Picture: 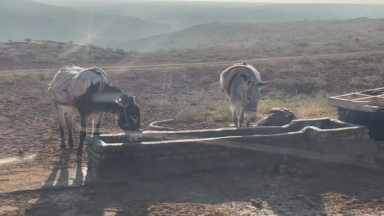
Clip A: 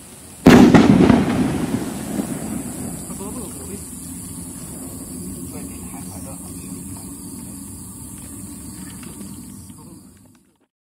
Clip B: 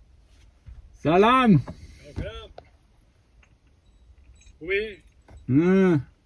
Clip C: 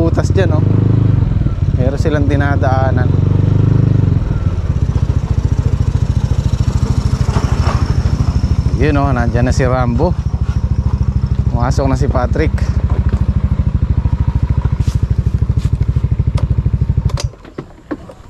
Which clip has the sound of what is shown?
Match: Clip B